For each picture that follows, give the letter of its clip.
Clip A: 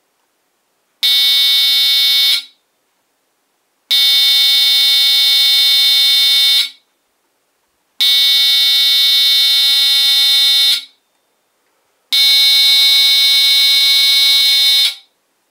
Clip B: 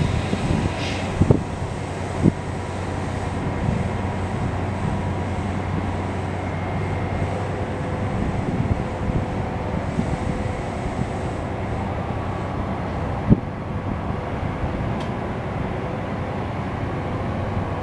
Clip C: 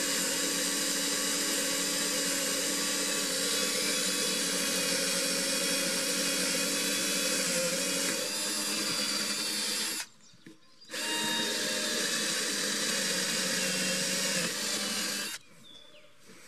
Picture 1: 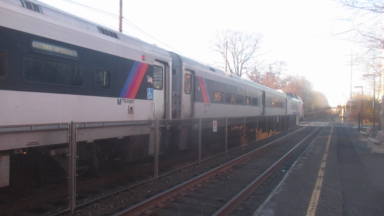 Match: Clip B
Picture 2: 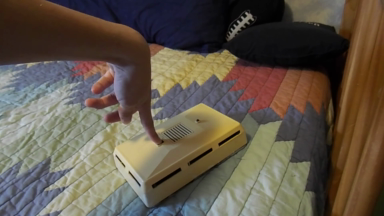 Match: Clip A